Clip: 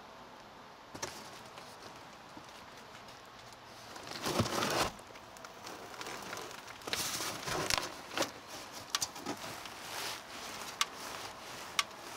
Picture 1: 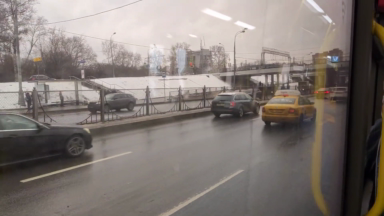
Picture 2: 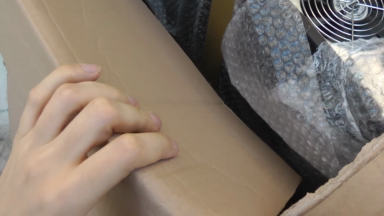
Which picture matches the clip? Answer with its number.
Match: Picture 2